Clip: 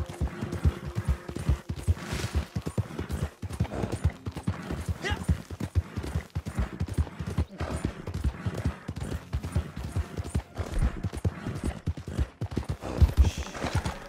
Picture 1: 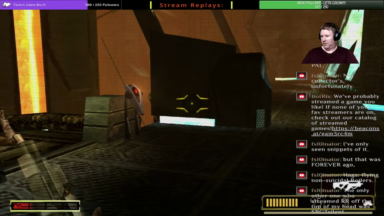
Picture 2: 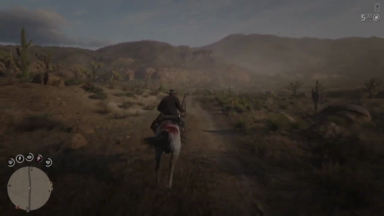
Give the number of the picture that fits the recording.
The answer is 2